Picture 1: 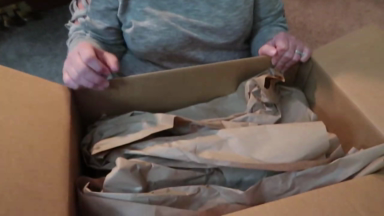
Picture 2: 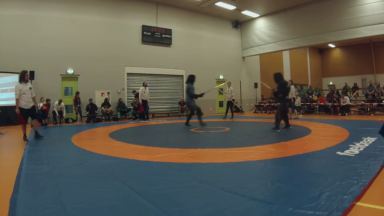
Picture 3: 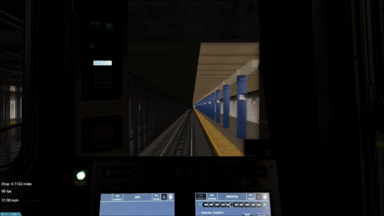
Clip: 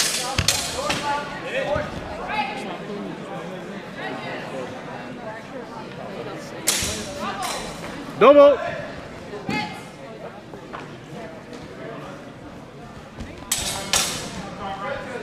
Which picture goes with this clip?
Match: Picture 2